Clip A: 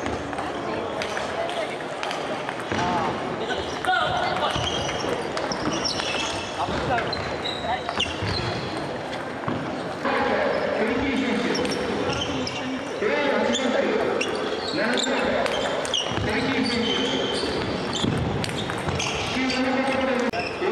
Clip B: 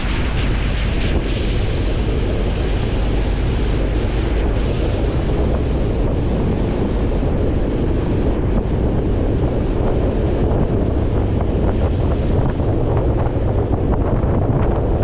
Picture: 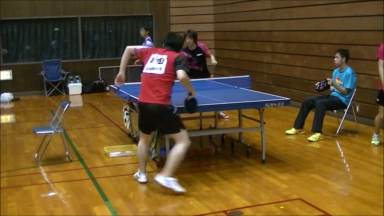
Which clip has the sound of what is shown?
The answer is A